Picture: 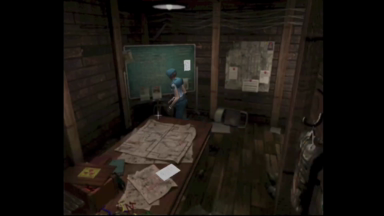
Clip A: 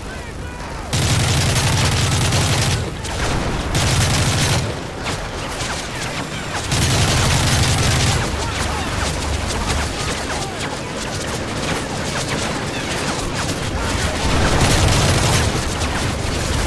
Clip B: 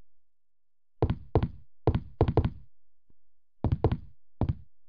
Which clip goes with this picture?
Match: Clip B